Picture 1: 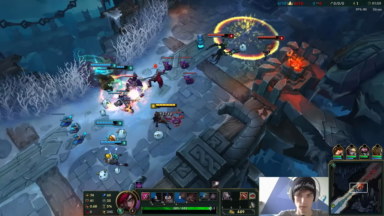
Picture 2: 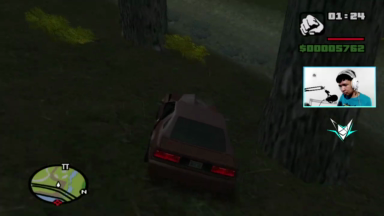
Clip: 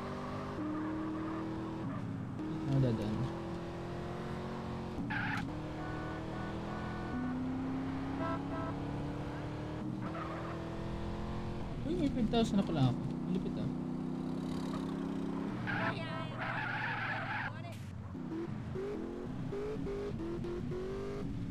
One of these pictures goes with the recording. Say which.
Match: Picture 2